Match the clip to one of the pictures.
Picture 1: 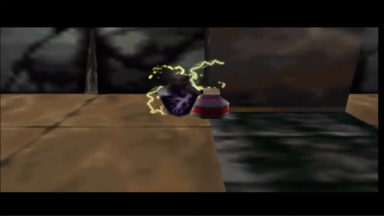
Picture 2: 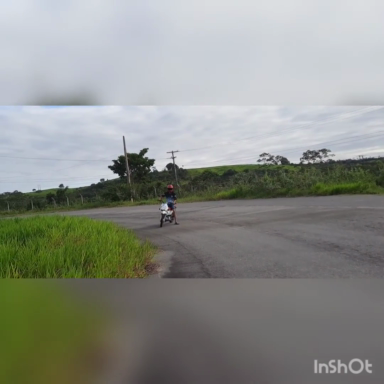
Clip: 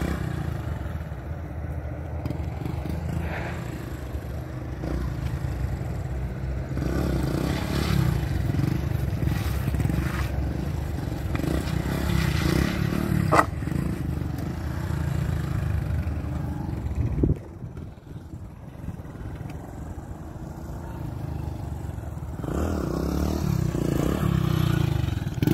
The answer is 2